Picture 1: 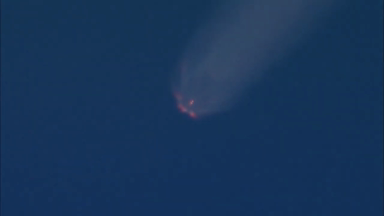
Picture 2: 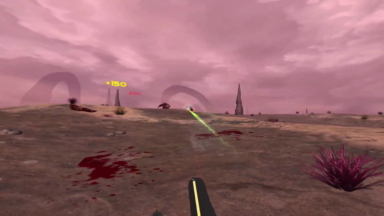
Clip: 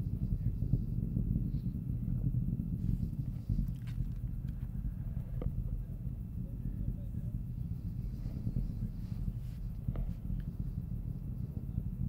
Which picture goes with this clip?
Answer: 1